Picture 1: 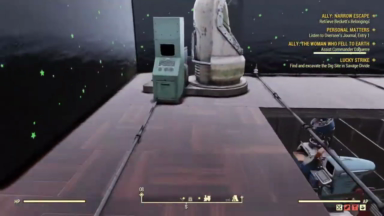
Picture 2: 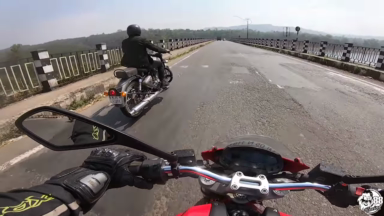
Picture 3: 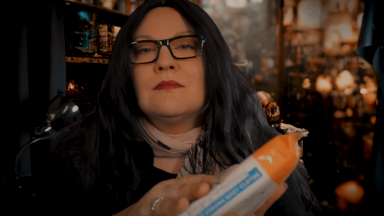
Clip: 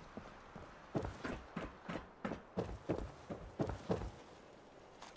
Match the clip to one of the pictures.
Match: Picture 1